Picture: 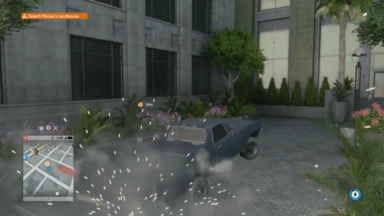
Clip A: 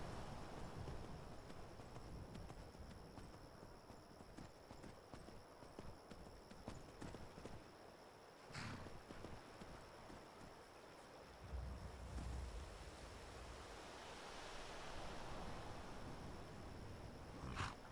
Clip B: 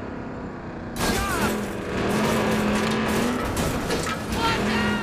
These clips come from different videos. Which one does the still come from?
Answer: B